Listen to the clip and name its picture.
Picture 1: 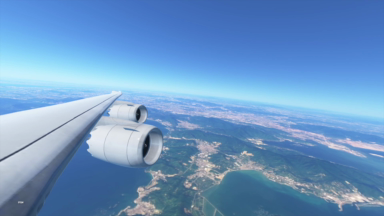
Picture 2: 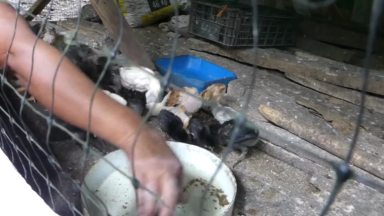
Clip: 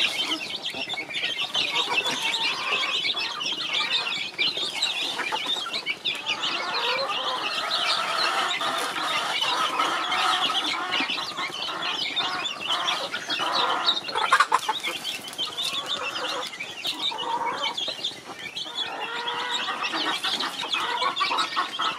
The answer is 2